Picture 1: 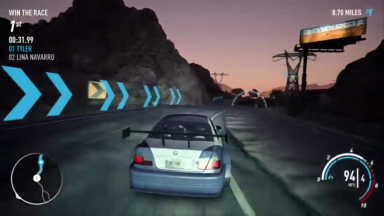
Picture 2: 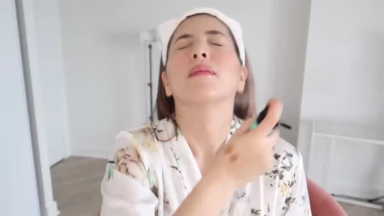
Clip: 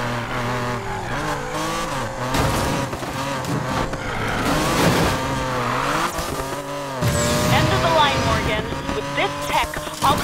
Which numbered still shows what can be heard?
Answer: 1